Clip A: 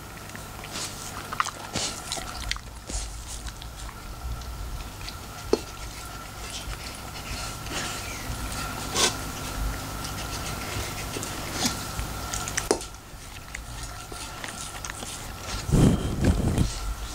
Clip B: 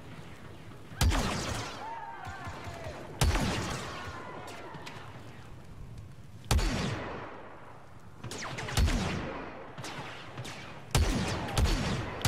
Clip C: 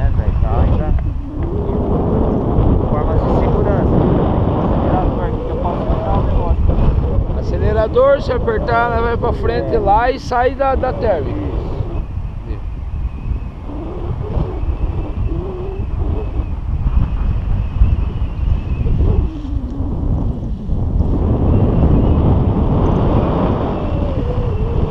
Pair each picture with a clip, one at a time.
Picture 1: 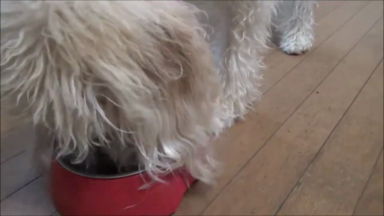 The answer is A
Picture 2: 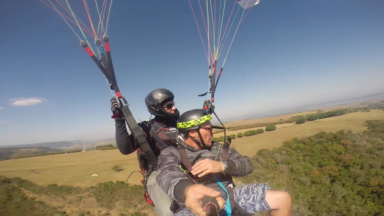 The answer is C